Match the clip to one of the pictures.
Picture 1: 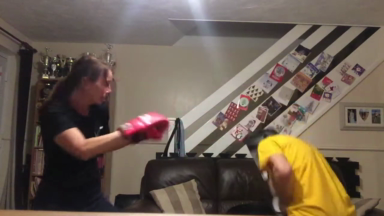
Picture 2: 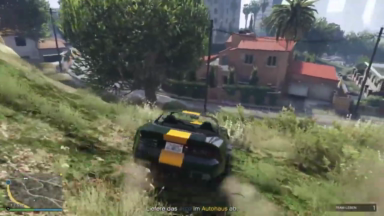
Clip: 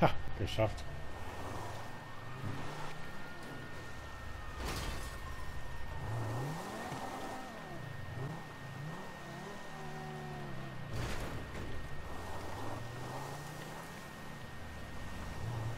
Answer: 2